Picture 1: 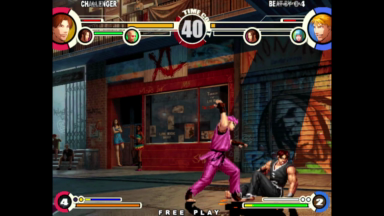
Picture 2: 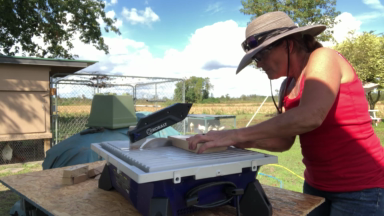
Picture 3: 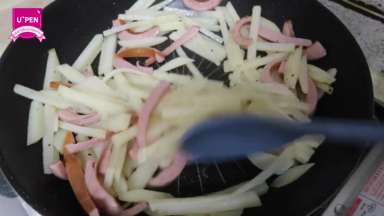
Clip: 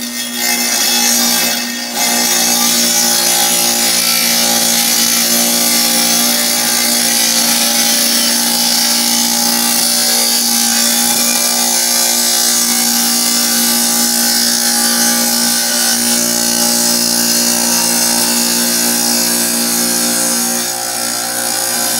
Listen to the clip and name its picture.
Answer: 2